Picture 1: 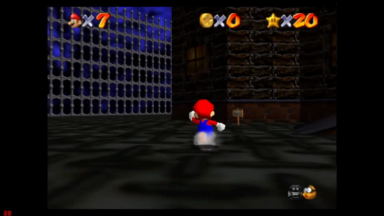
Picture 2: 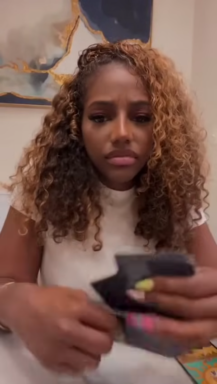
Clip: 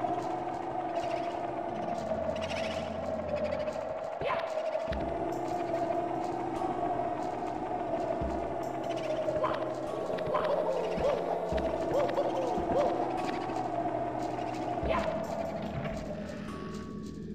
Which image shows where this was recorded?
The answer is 1